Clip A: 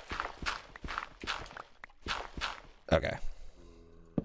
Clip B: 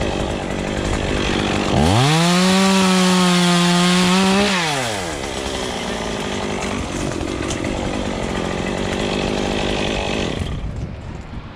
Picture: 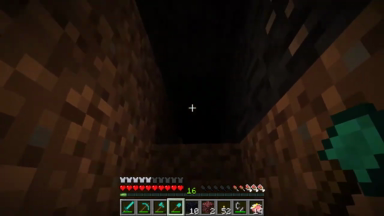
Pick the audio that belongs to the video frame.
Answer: A